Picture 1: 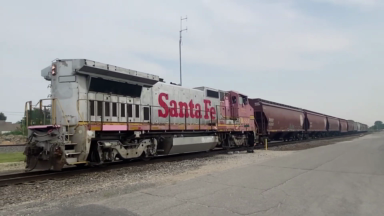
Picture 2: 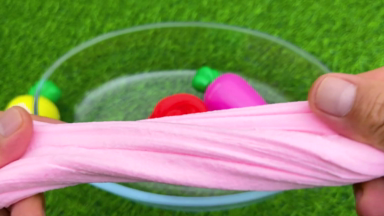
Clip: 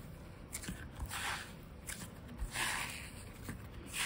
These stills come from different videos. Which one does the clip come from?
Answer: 2